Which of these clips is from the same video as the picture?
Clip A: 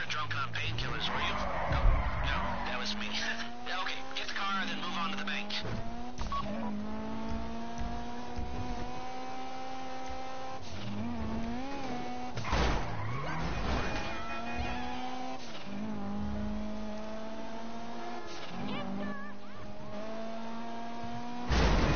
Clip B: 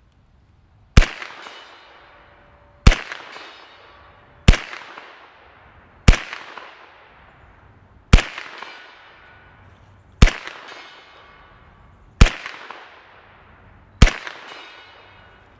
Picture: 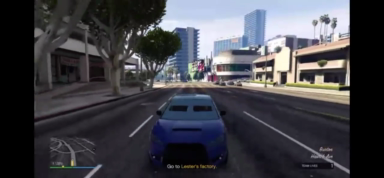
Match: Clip A